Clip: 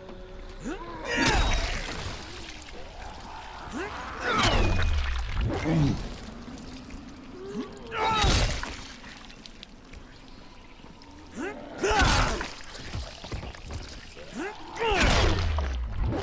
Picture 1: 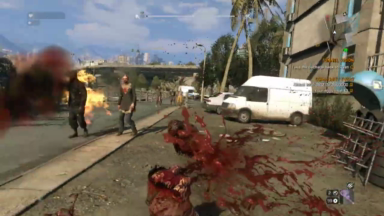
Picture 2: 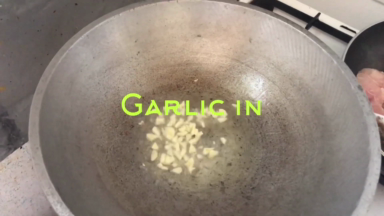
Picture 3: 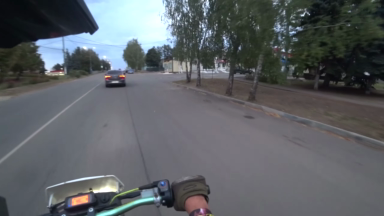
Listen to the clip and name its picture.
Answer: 1